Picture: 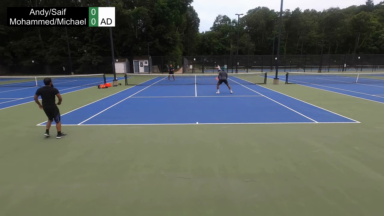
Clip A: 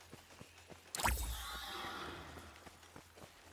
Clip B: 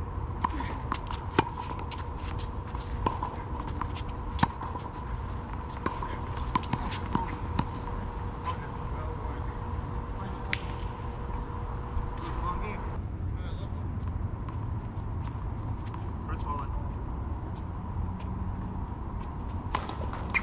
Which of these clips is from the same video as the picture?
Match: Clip B